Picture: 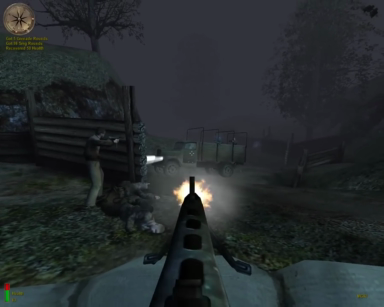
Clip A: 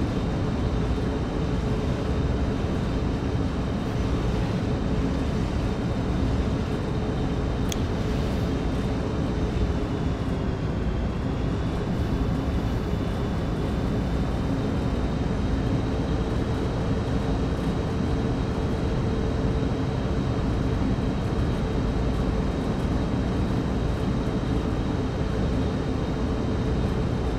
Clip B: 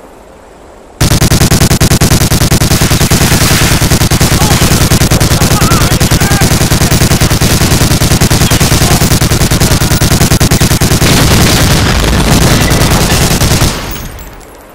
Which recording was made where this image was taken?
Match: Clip B